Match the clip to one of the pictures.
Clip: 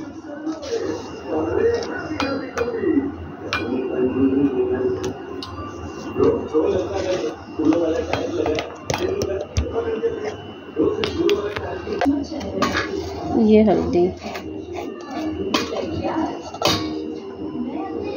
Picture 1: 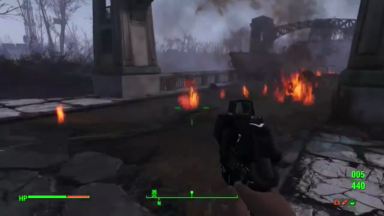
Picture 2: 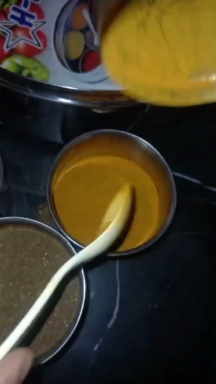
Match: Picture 2